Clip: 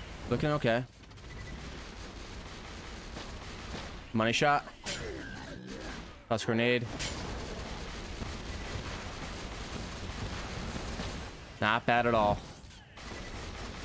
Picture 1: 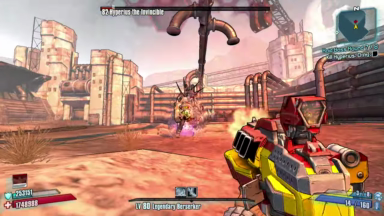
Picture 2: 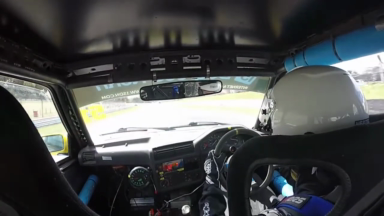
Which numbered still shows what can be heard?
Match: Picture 1